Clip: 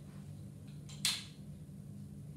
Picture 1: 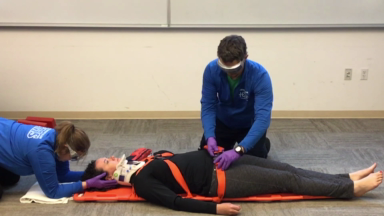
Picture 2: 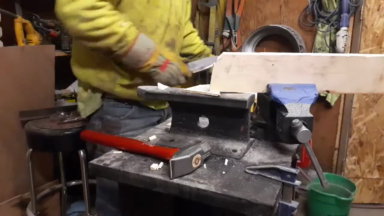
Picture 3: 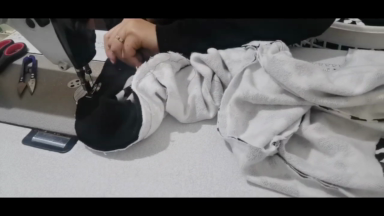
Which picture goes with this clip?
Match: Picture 1